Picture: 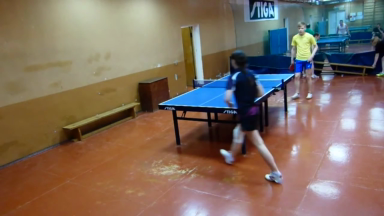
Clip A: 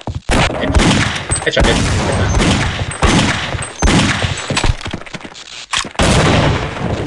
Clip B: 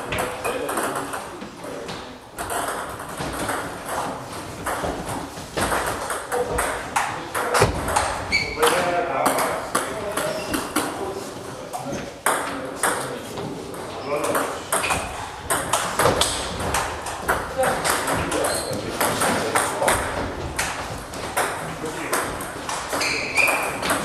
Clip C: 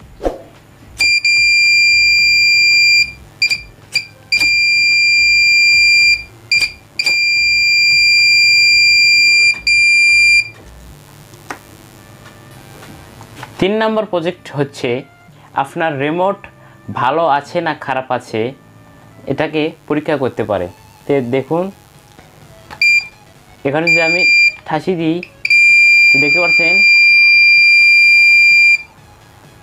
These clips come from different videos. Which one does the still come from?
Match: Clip B